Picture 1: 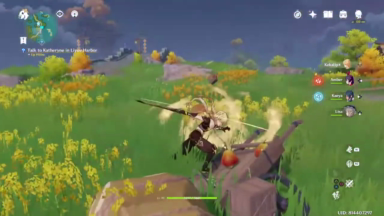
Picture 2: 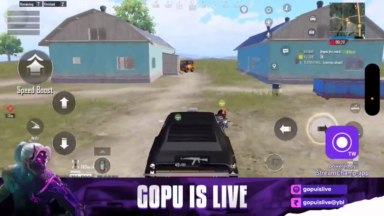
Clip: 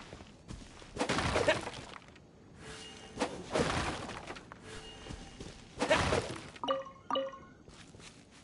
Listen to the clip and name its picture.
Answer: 1